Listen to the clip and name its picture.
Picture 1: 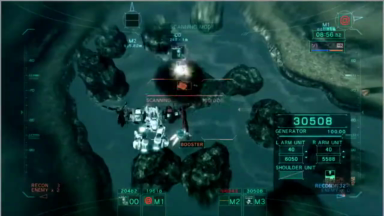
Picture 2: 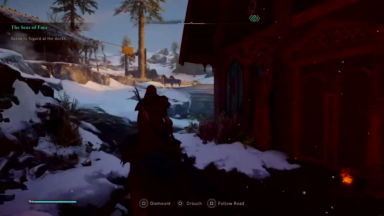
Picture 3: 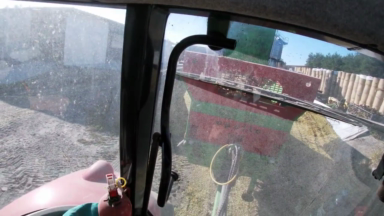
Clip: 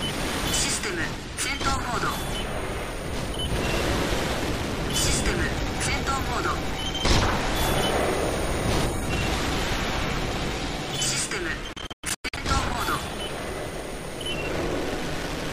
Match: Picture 1